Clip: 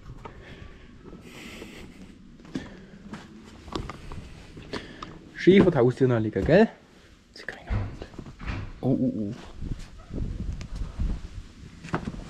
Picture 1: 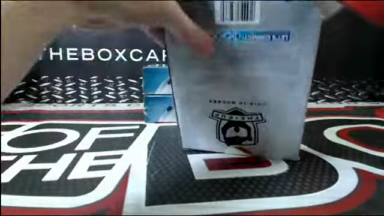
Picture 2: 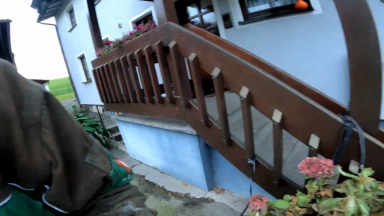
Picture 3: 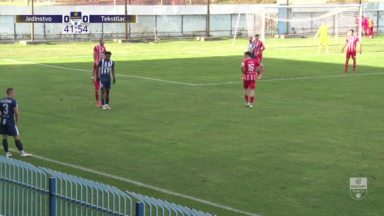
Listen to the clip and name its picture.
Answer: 2